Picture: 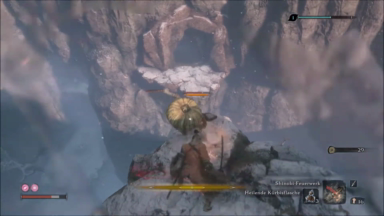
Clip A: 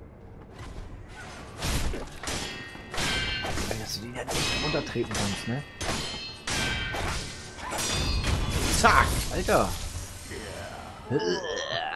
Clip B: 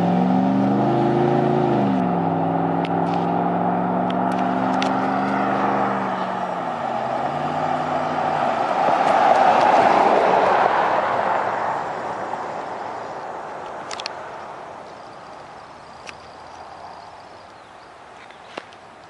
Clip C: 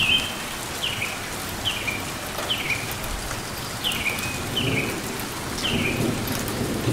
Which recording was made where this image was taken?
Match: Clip A